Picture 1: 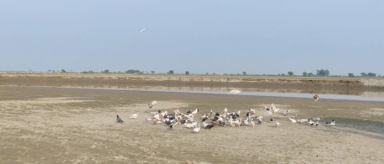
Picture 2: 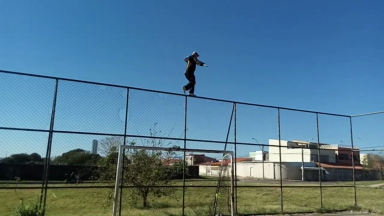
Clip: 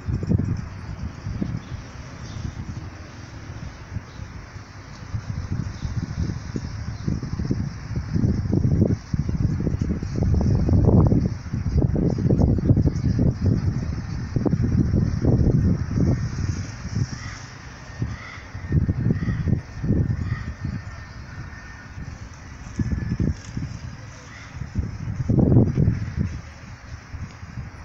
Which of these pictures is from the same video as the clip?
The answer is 2